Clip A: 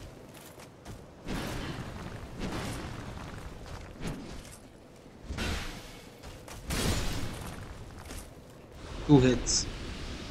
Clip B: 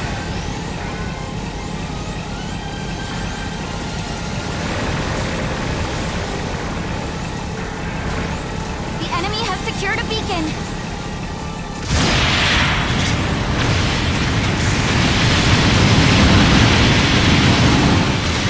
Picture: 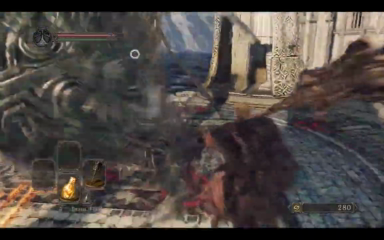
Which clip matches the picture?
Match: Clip A